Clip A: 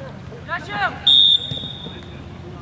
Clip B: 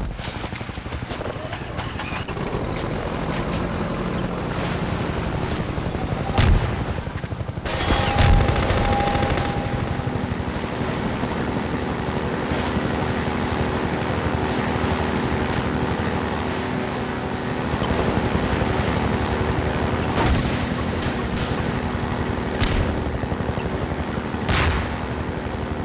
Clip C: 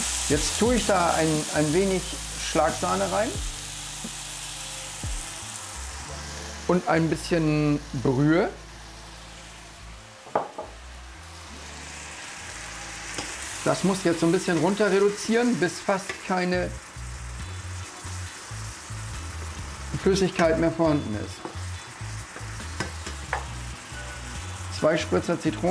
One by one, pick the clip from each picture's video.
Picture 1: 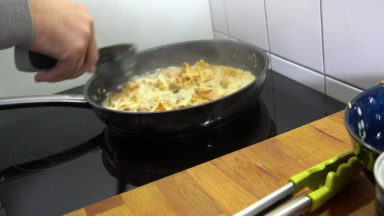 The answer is C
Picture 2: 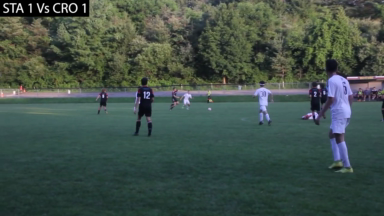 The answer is A